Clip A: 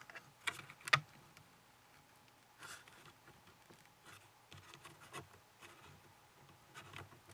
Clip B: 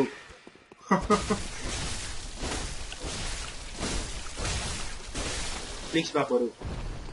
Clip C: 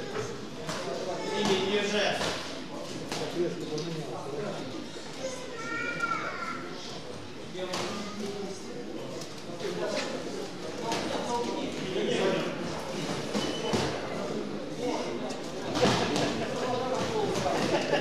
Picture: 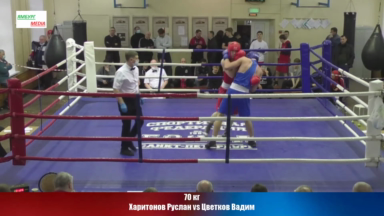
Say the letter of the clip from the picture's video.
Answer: C